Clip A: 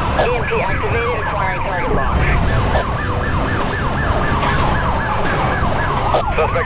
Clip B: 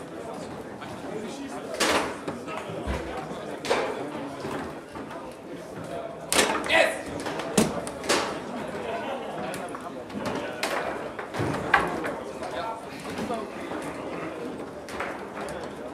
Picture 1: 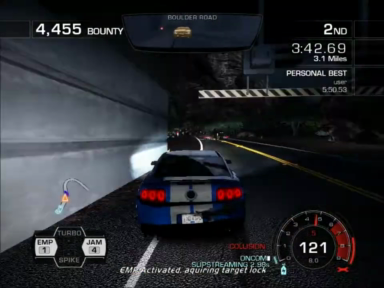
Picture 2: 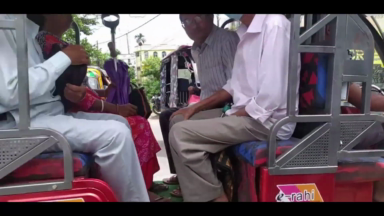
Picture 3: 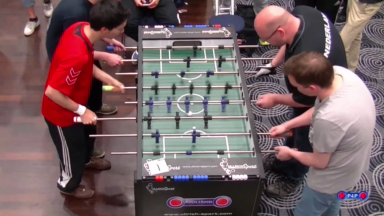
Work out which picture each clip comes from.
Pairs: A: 1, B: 3